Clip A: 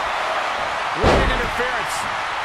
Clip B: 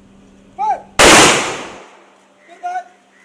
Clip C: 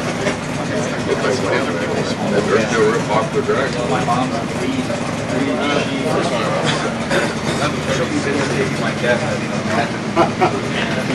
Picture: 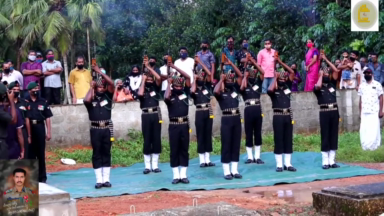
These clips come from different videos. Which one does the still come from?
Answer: B